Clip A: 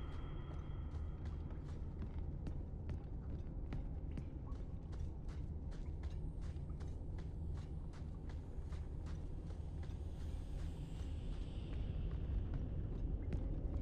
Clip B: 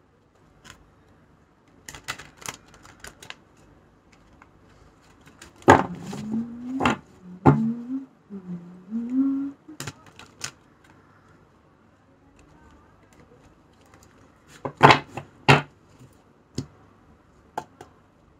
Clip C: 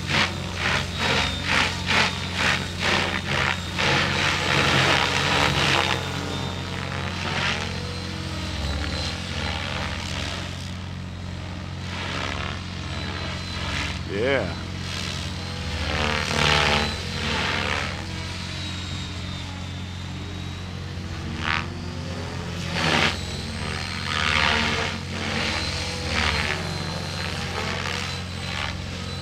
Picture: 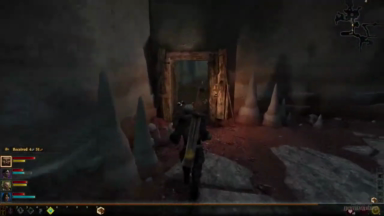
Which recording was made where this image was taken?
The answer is A